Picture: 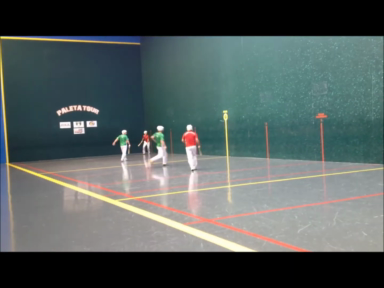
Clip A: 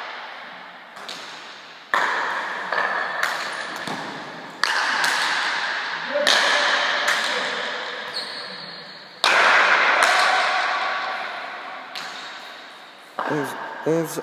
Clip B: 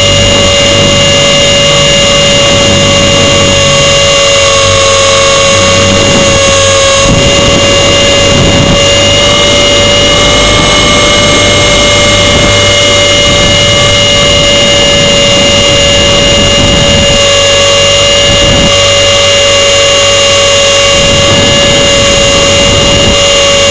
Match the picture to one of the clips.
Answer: A